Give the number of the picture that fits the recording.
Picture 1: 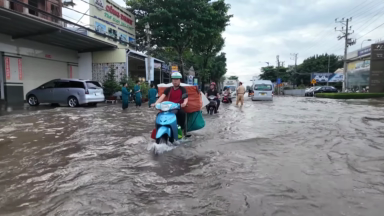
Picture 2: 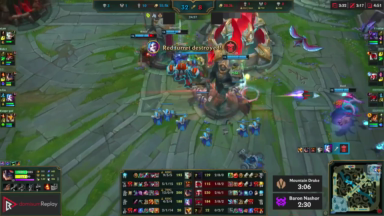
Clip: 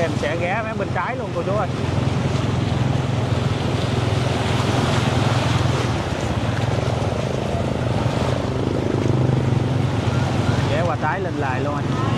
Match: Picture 1